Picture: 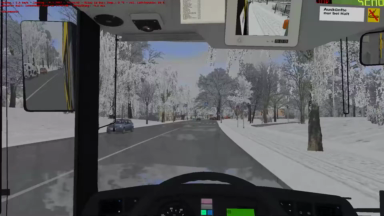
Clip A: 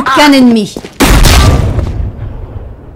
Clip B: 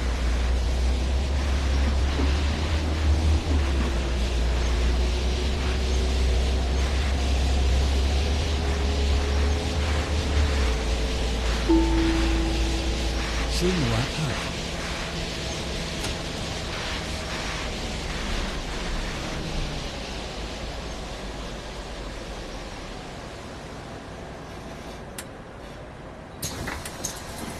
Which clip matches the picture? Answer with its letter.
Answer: B